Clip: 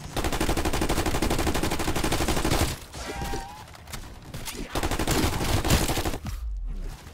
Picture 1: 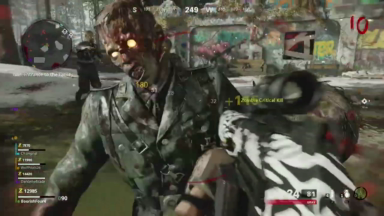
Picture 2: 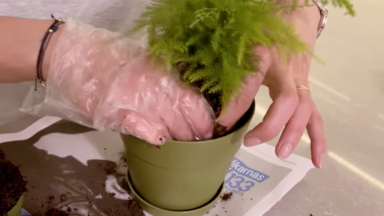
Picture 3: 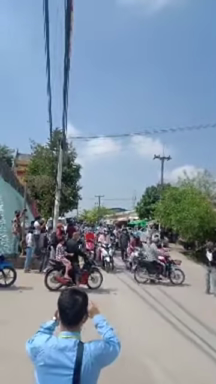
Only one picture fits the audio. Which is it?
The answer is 1